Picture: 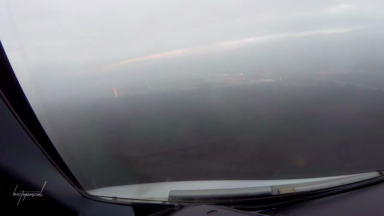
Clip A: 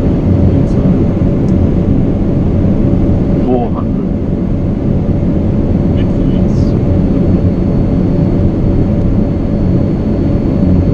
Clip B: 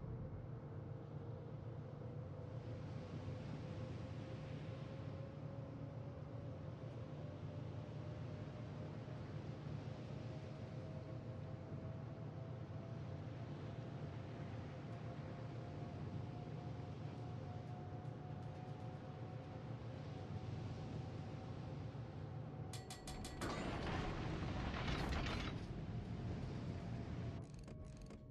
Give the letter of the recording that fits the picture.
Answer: A